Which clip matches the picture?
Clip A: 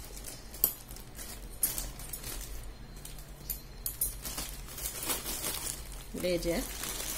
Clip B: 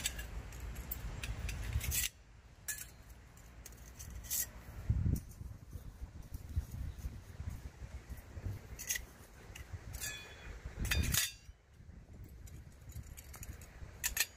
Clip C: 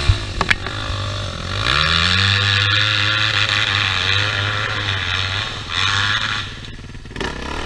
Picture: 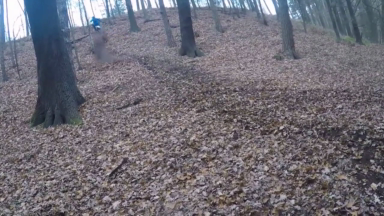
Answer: C